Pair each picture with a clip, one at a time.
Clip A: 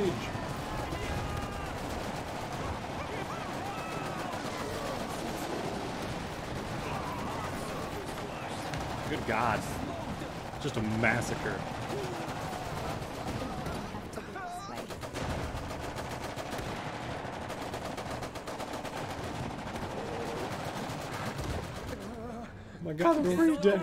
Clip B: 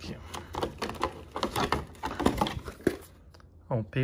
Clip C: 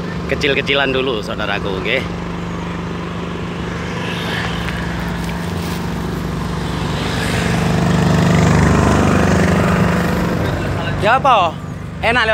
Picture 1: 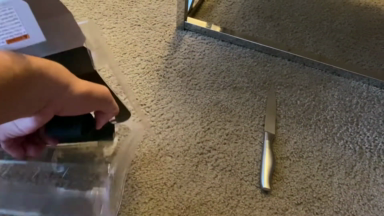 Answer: B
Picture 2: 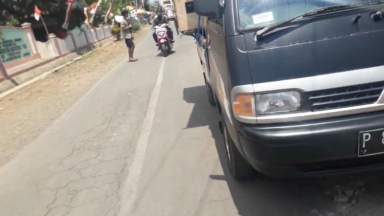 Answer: C